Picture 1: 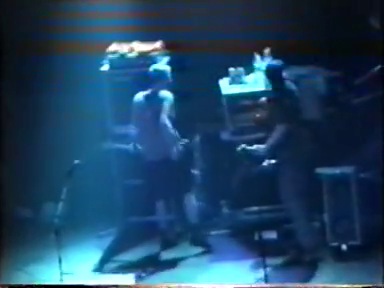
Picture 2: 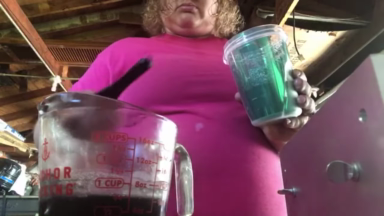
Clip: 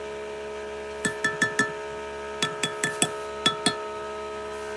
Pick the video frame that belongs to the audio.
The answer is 2